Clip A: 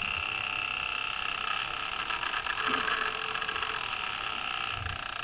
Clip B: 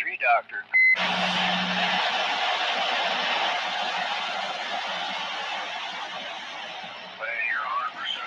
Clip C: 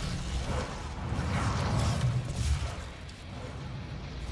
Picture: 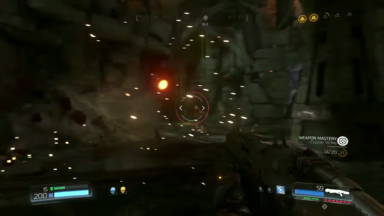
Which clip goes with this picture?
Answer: C